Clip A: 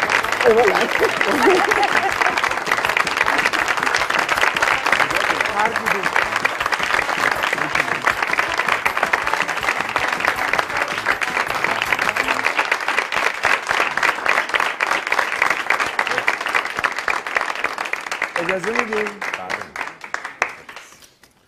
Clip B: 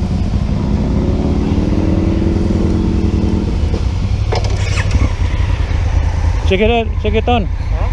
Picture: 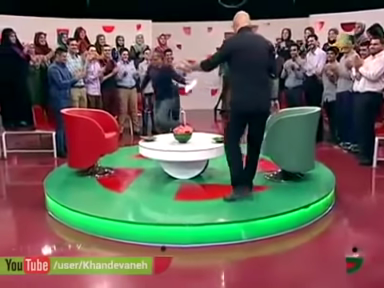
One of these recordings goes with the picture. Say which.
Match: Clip A